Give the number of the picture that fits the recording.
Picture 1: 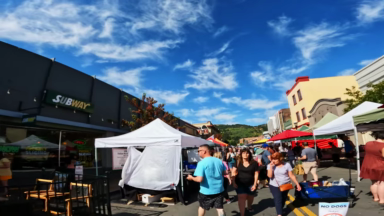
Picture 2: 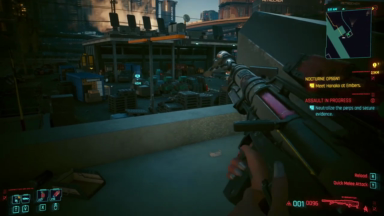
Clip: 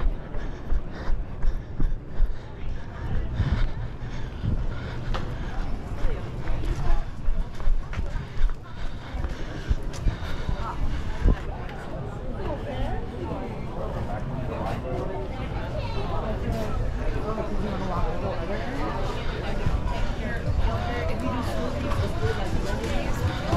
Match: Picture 1